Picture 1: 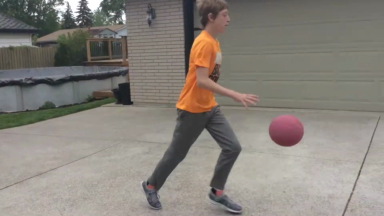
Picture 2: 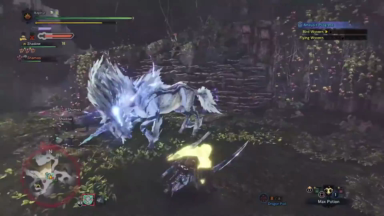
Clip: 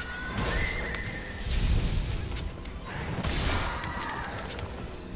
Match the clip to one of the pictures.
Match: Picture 2